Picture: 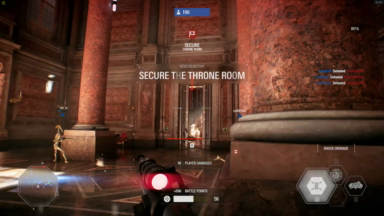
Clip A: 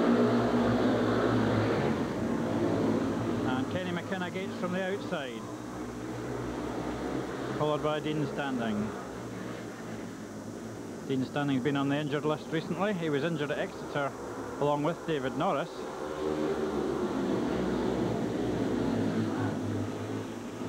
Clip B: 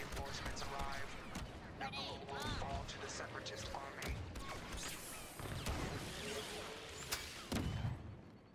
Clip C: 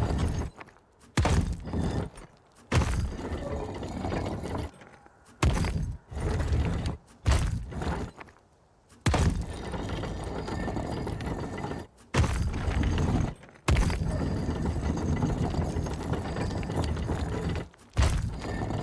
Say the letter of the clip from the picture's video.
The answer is B